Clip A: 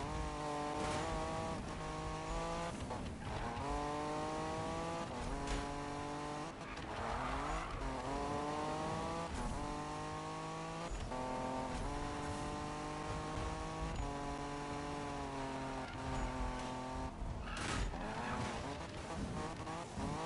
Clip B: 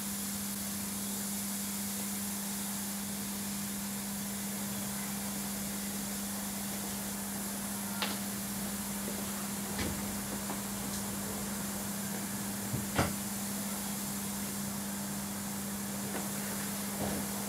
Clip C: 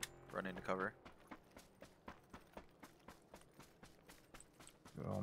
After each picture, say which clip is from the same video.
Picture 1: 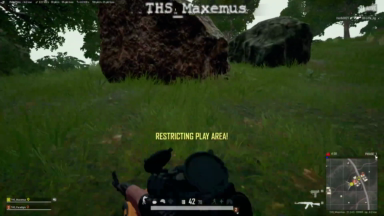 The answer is C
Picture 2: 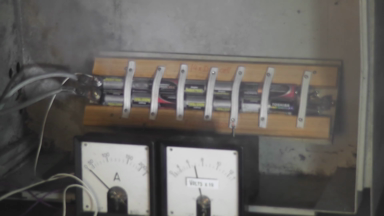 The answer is B